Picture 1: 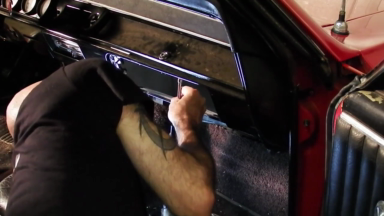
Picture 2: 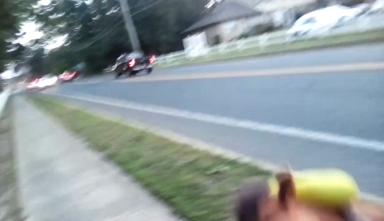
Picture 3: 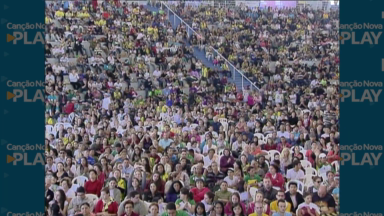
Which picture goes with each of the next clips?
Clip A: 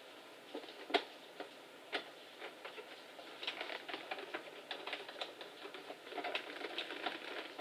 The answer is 1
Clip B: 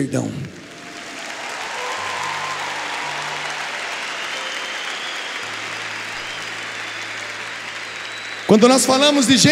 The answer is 3